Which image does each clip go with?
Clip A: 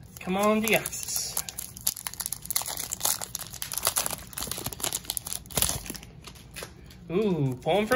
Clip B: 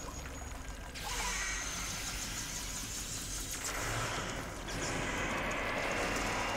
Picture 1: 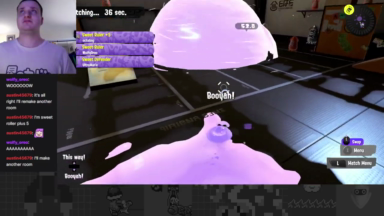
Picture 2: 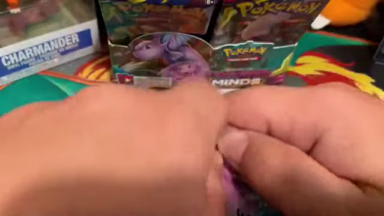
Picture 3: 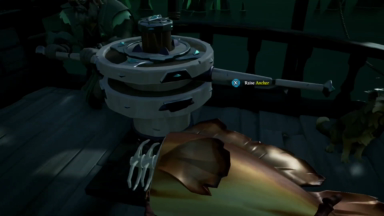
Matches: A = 2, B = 1